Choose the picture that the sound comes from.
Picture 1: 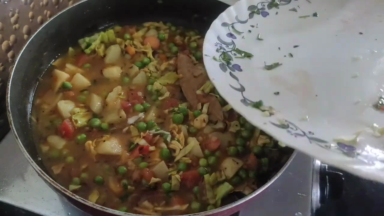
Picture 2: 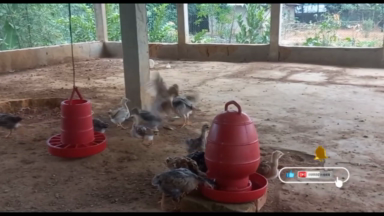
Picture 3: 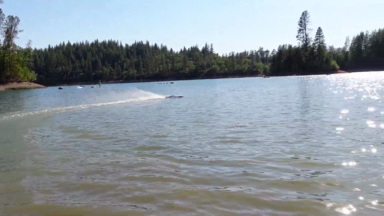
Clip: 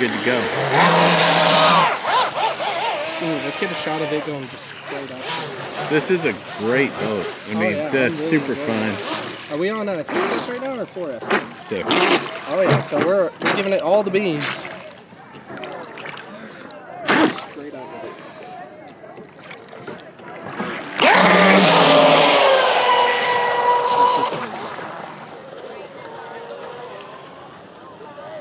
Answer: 3